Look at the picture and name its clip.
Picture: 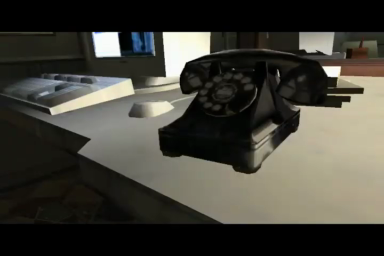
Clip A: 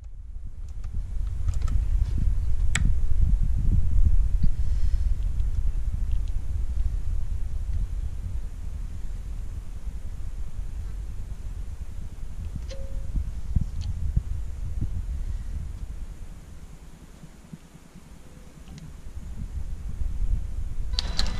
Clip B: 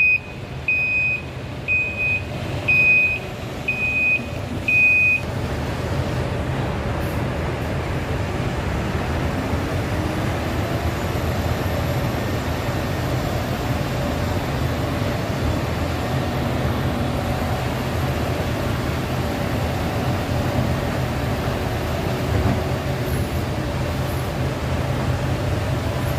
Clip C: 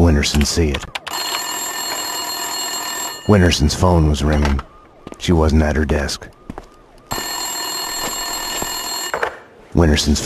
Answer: C